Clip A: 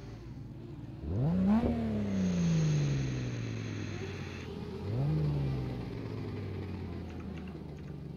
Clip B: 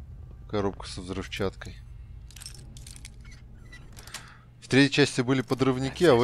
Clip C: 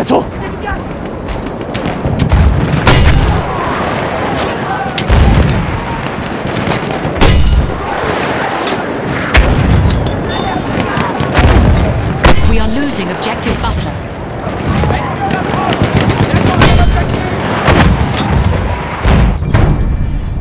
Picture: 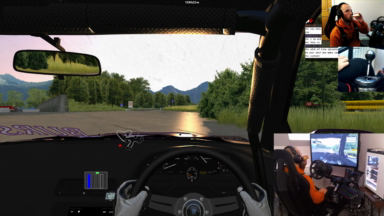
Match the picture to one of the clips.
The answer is A